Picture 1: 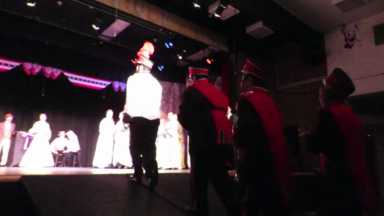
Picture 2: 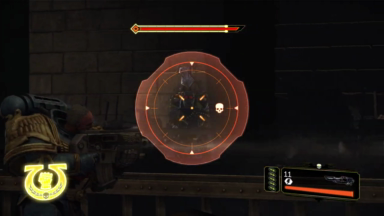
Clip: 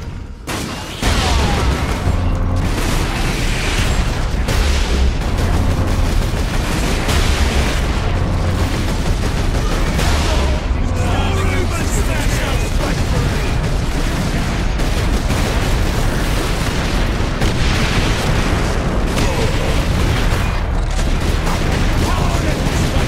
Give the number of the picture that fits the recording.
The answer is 2